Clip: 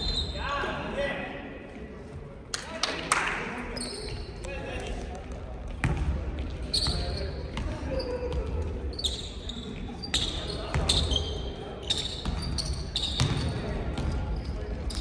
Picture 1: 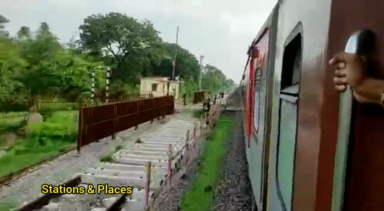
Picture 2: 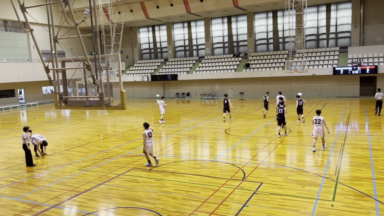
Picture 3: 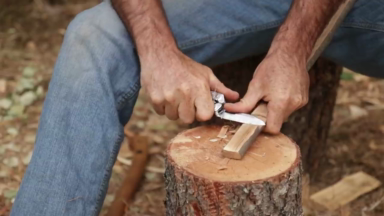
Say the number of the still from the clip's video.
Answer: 2